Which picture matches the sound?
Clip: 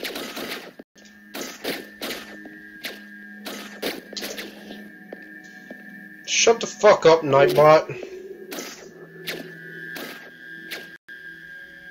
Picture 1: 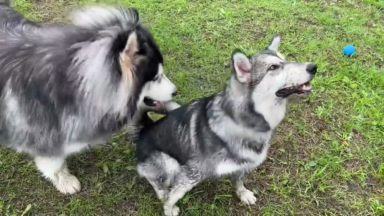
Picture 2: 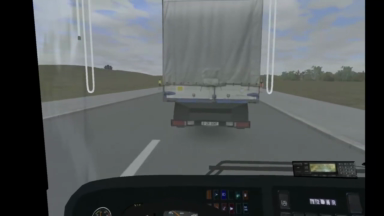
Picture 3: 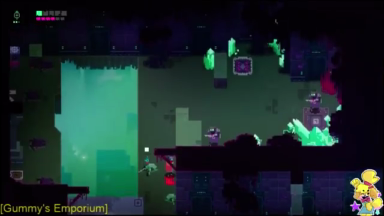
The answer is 3